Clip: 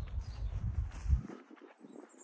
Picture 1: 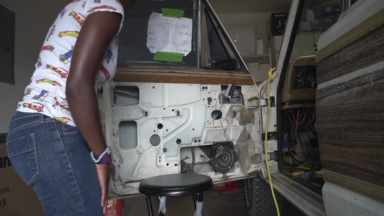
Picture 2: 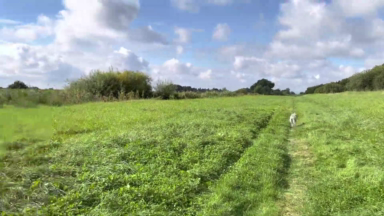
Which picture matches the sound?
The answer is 2